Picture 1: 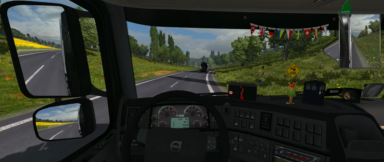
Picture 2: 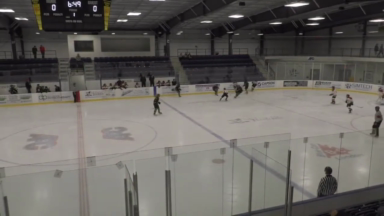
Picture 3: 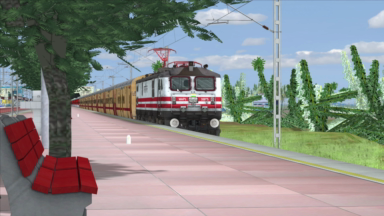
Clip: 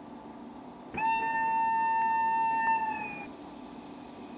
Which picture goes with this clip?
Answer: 3